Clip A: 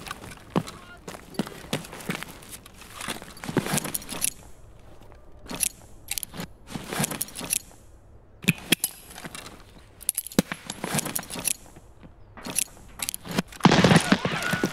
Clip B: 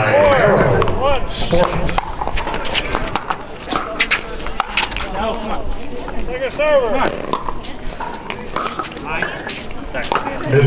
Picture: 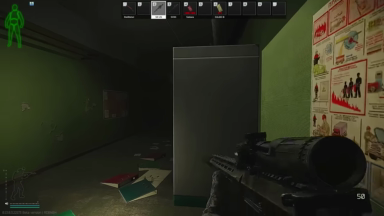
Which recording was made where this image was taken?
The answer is A